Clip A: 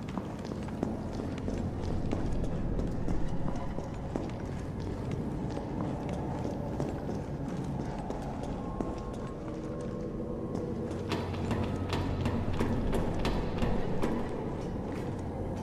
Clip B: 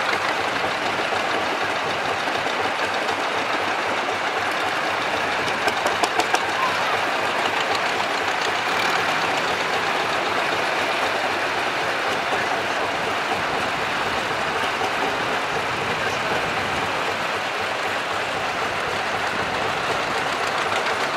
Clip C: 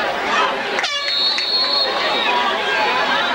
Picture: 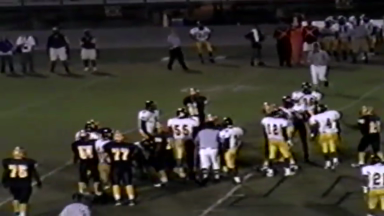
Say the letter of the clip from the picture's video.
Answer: C